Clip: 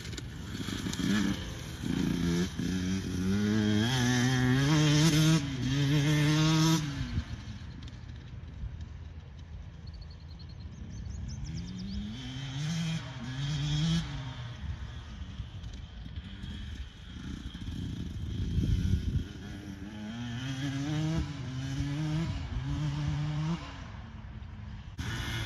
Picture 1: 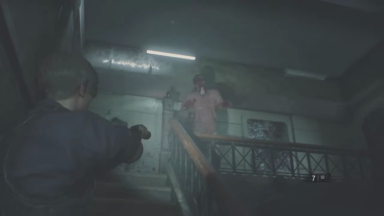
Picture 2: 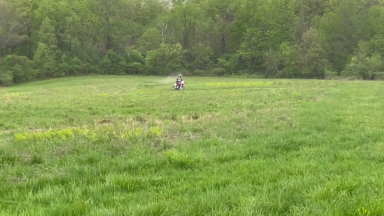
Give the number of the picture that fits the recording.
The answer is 2